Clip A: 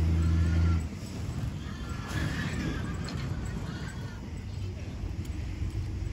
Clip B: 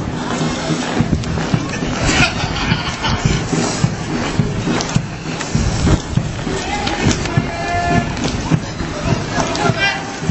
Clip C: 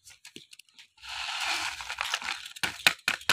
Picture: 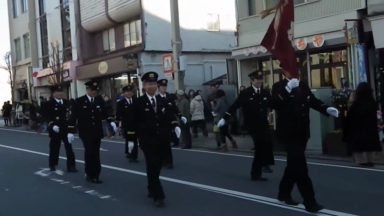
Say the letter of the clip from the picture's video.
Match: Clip B